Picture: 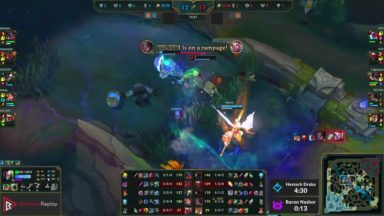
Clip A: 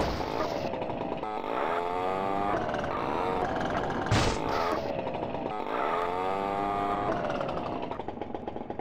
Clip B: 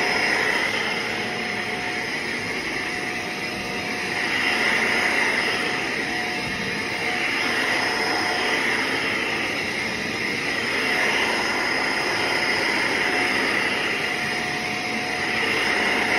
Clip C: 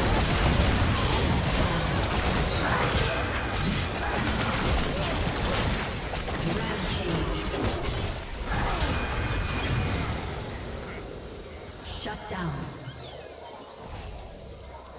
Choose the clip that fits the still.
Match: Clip C